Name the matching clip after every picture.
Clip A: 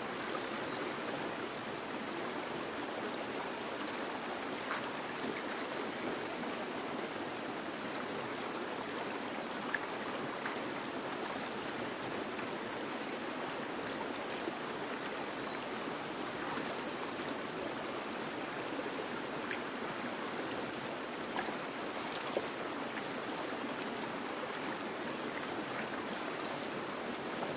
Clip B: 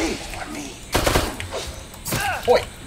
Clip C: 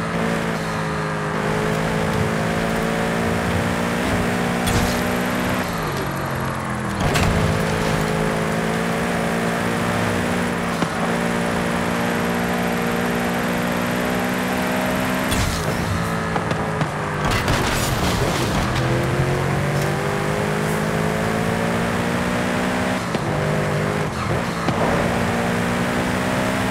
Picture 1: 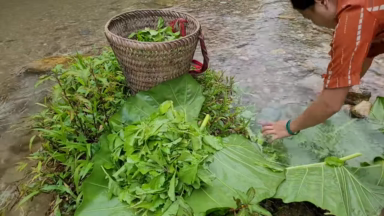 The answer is A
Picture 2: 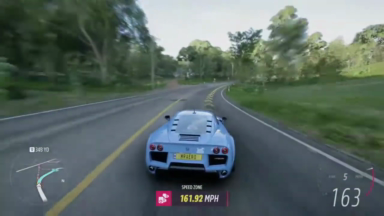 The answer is C